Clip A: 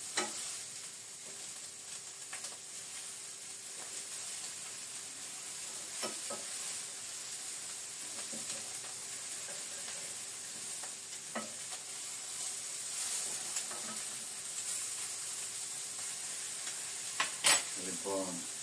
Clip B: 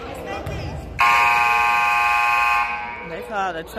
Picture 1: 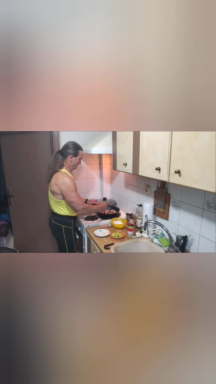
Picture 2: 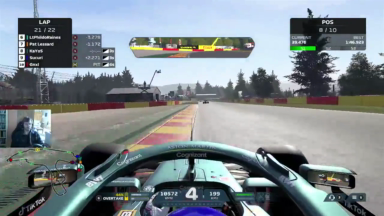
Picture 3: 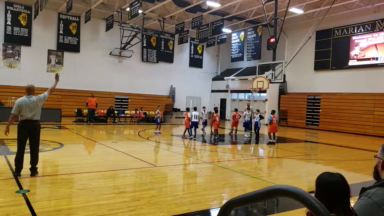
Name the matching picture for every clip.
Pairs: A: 1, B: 3